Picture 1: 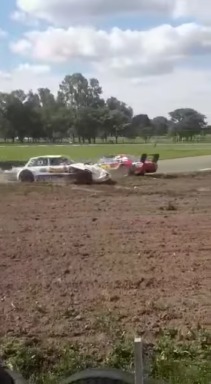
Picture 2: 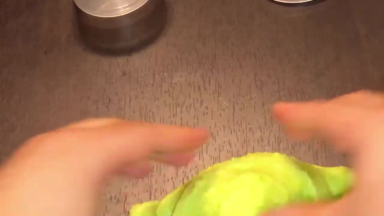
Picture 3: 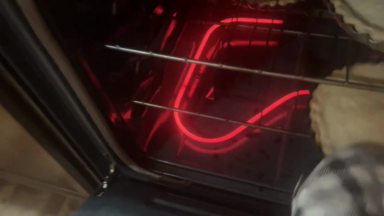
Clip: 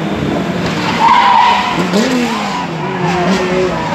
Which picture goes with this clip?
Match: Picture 1